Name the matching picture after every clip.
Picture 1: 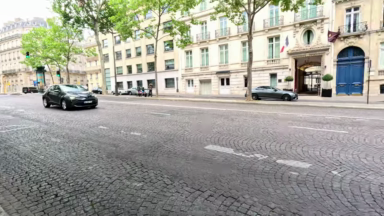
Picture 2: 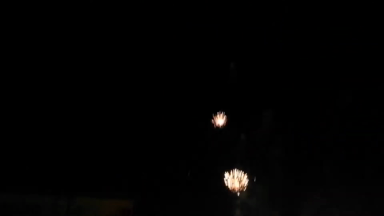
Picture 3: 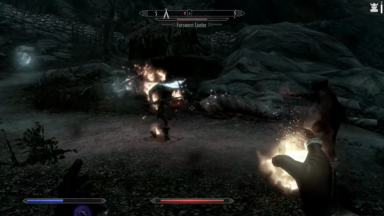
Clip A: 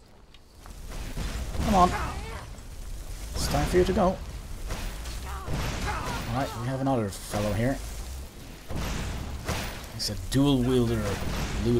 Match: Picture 3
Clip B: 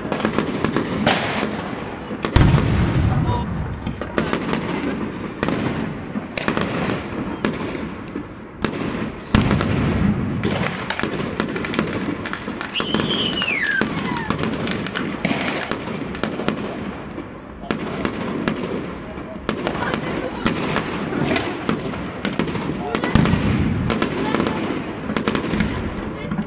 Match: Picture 2